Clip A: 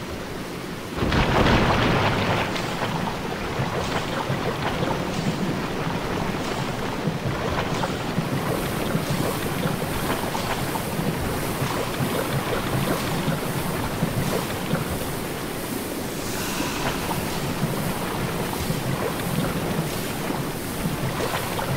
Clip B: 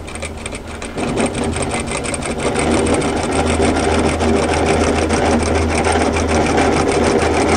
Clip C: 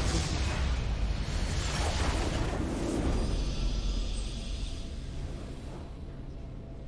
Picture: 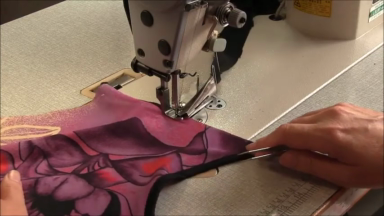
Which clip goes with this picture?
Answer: B